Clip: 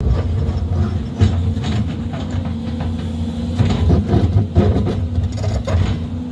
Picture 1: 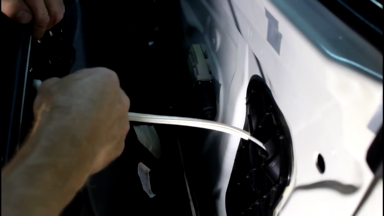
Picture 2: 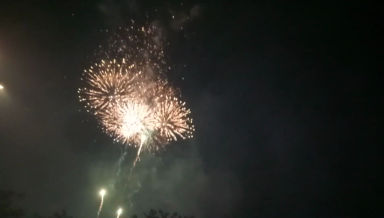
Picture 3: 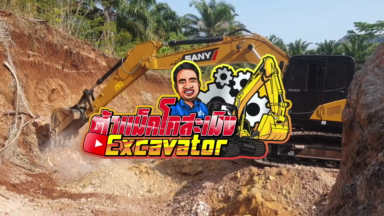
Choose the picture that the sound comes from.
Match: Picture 3